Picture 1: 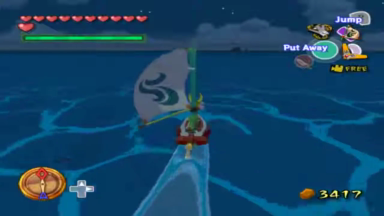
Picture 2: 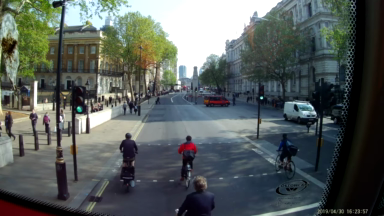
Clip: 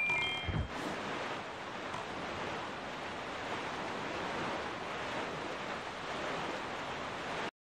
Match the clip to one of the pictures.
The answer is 1